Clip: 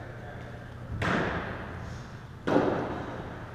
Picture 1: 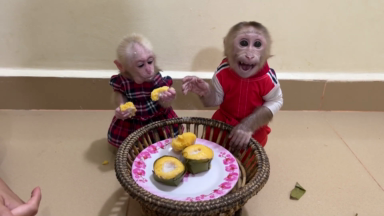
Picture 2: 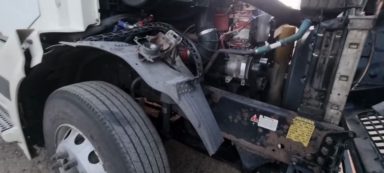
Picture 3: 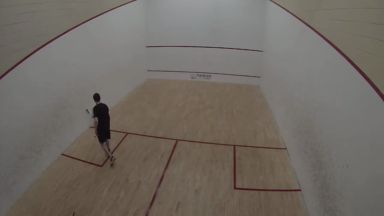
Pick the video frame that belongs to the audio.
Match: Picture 3